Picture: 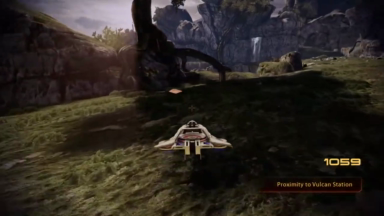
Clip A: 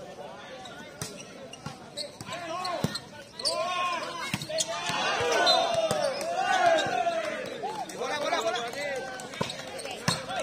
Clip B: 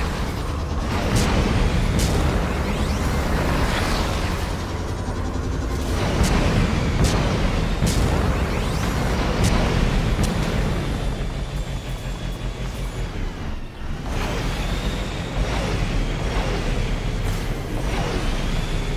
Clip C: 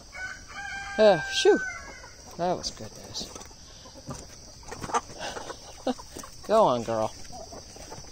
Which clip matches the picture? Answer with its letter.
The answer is B